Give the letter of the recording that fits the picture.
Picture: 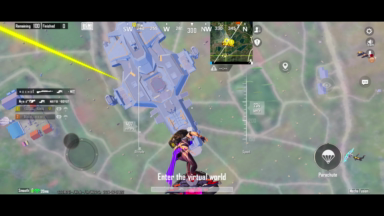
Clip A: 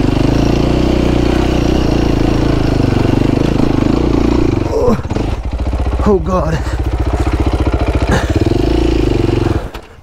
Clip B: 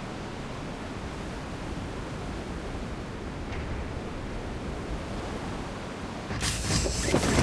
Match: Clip B